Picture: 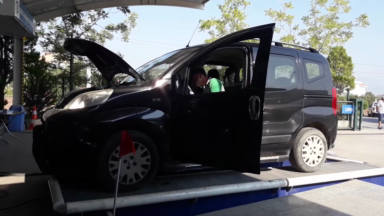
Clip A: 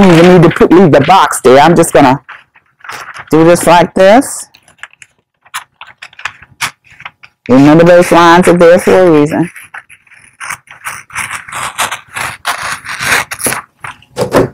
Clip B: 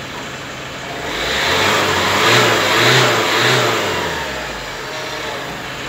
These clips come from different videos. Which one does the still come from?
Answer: B